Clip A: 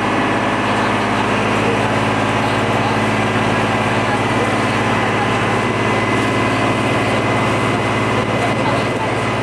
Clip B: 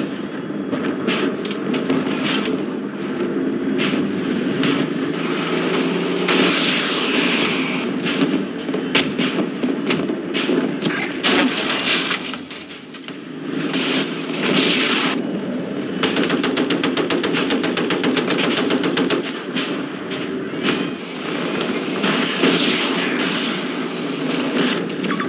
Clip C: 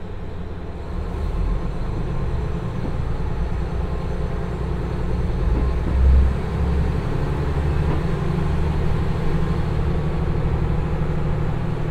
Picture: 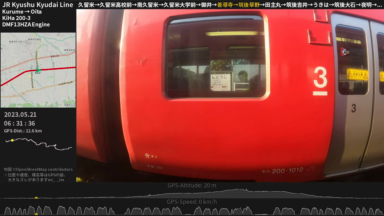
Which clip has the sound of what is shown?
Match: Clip C